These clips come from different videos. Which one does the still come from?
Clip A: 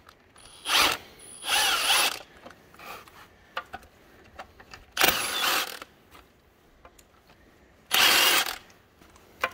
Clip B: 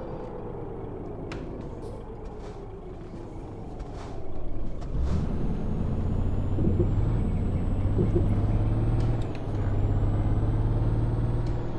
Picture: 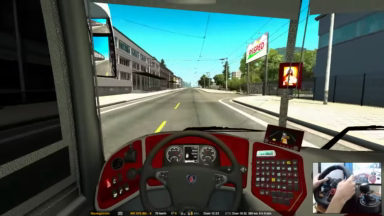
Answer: B